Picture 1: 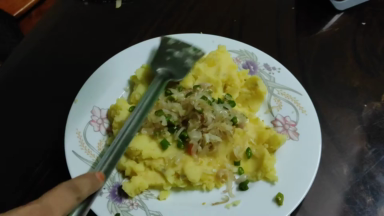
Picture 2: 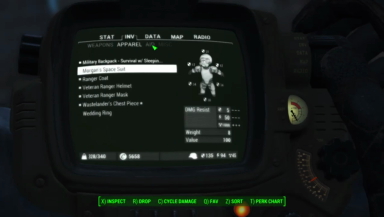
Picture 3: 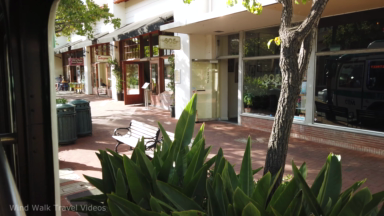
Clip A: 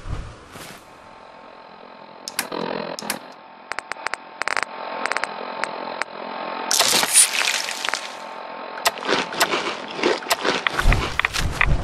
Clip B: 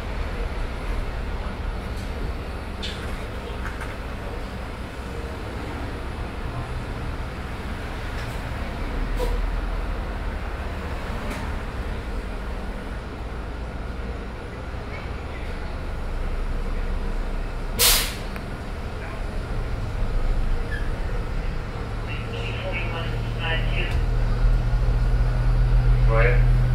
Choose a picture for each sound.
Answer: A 2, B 3